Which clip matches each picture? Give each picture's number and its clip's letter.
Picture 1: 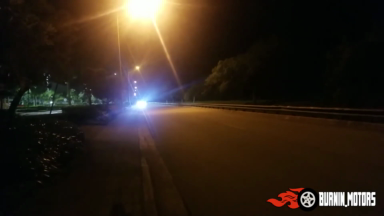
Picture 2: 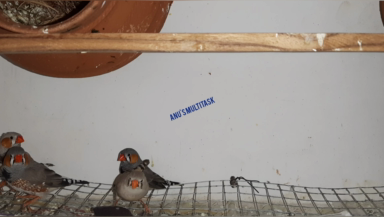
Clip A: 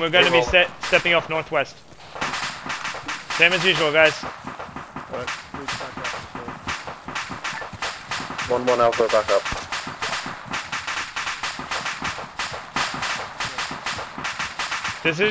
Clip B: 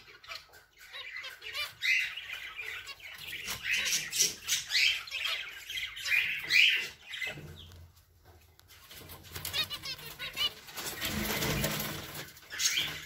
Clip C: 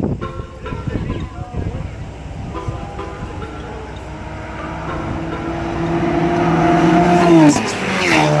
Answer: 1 C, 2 B